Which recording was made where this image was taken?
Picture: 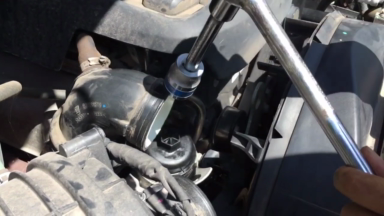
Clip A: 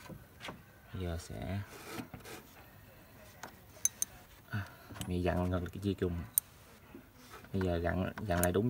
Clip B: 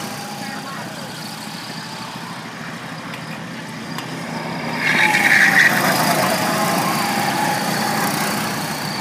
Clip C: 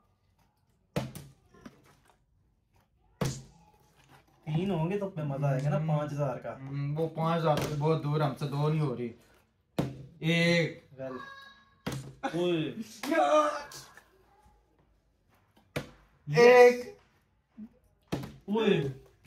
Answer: A